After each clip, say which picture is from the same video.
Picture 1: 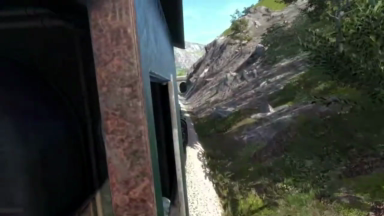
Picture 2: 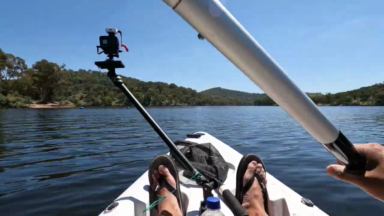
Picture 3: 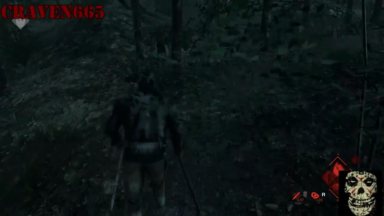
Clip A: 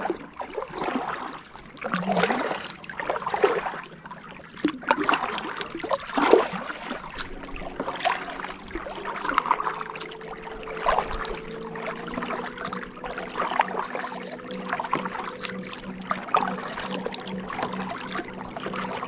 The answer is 2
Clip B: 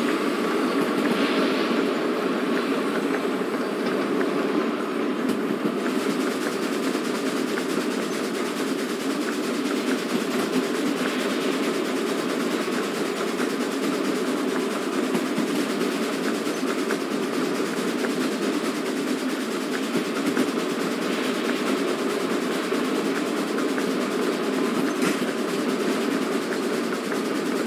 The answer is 1